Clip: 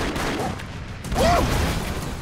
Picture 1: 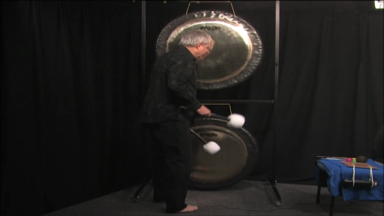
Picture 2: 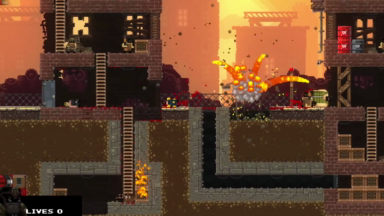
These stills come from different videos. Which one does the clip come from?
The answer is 2